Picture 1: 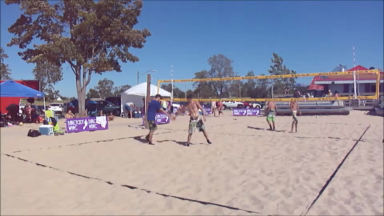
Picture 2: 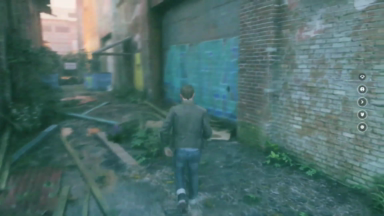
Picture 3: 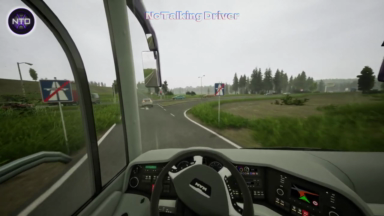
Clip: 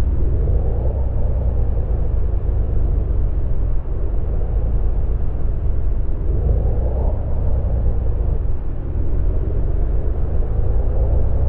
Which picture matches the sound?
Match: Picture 3